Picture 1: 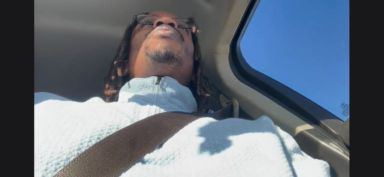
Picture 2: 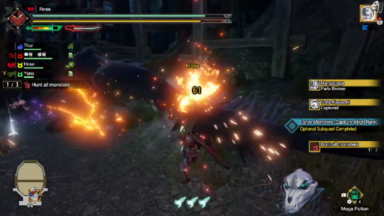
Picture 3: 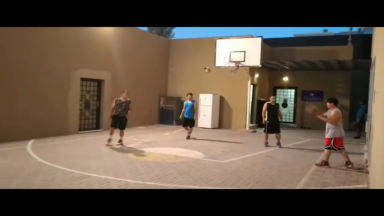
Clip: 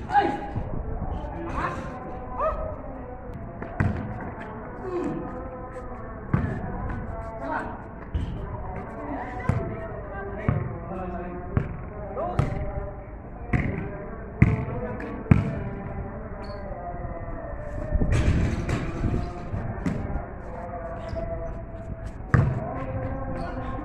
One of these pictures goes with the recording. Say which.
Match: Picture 3